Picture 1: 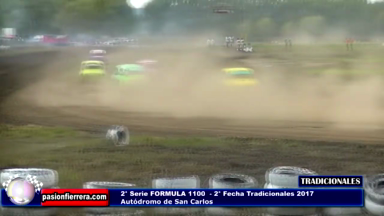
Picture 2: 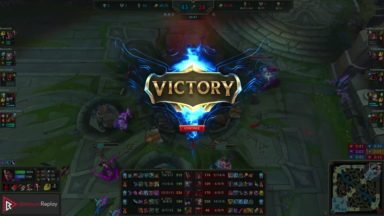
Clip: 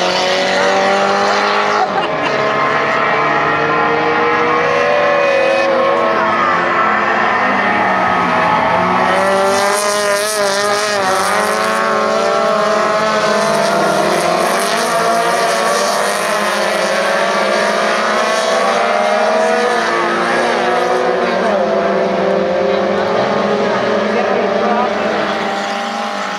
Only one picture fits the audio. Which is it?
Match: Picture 1